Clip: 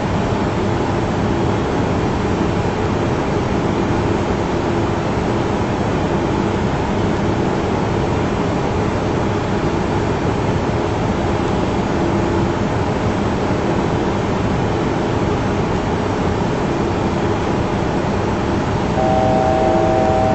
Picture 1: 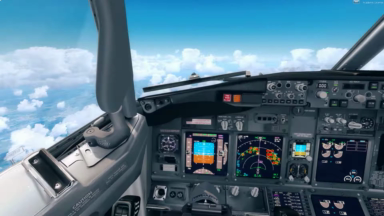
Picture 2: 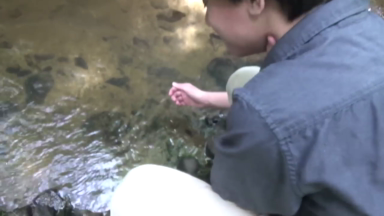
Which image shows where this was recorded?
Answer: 1